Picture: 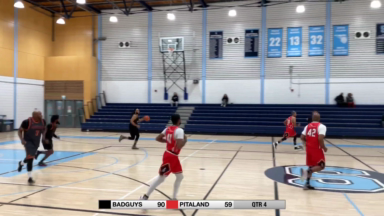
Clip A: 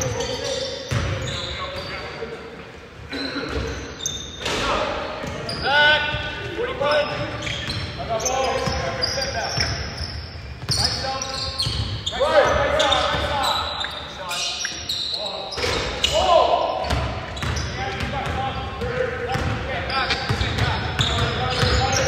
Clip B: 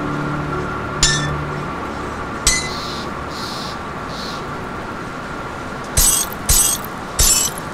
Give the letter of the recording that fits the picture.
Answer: A